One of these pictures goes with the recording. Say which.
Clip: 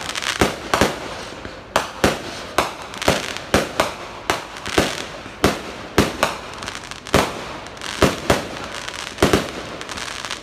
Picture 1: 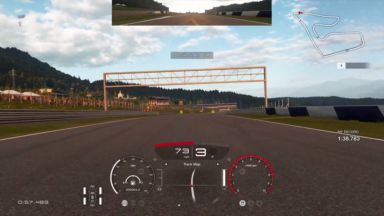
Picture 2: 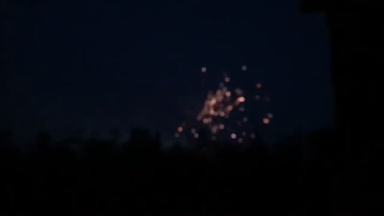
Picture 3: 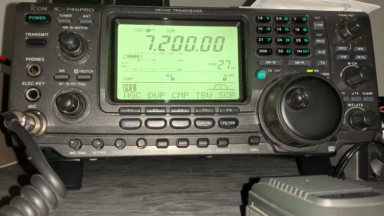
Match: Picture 2